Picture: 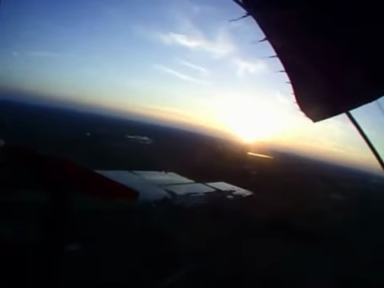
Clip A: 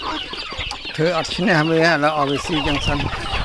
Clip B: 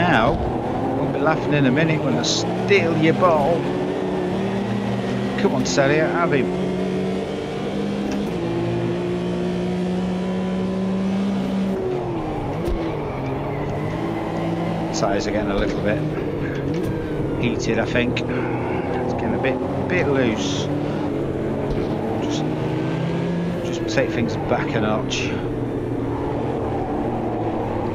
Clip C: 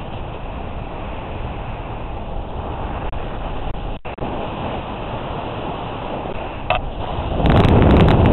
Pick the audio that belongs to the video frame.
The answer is C